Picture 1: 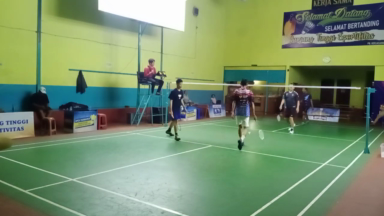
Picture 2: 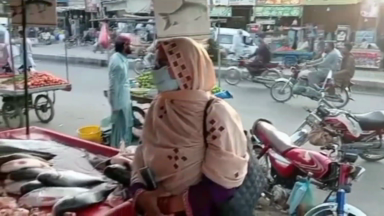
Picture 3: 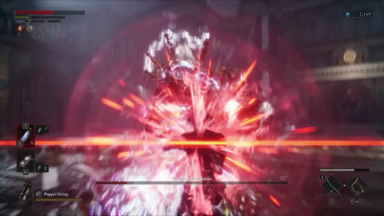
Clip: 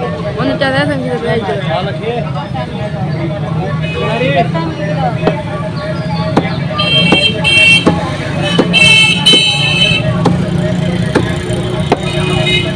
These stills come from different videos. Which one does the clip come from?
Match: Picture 2